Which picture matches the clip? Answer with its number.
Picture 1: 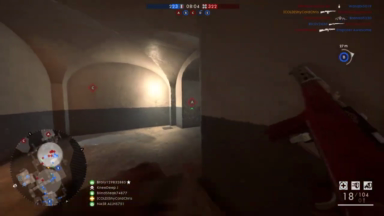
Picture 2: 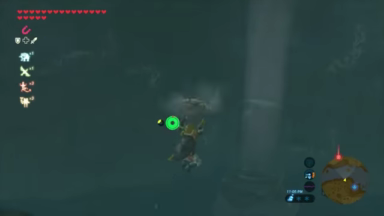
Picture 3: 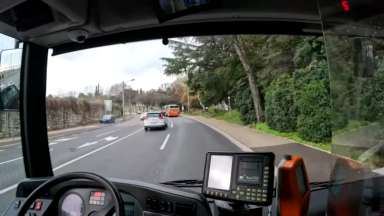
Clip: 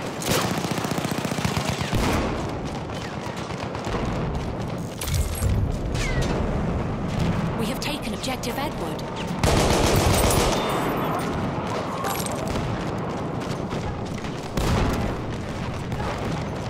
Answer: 1